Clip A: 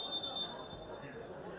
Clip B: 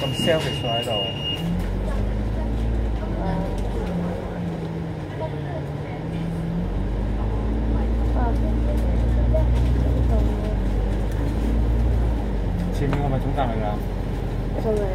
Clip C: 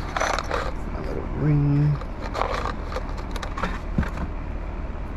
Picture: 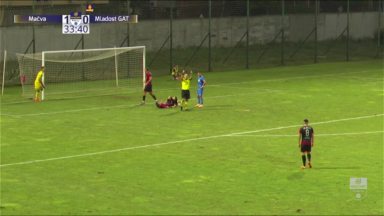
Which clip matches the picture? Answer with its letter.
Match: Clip A